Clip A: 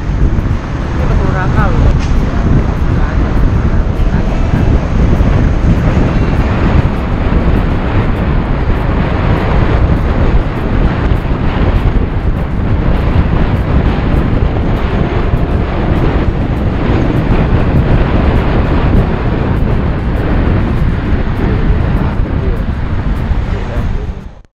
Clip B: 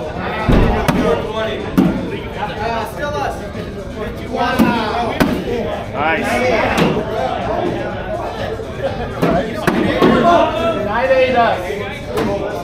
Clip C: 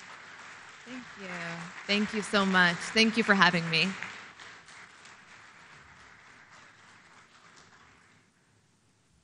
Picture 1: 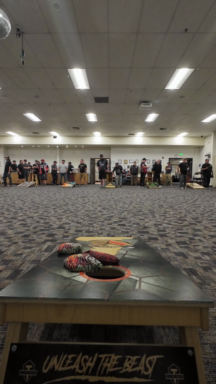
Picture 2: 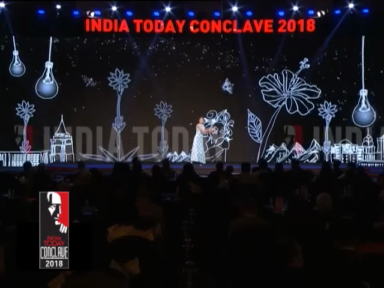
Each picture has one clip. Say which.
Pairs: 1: B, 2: C